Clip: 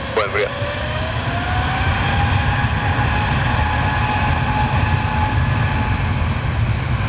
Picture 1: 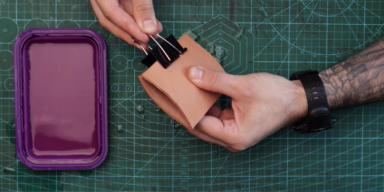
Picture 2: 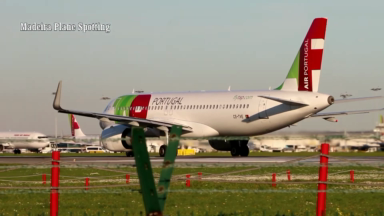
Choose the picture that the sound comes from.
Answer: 2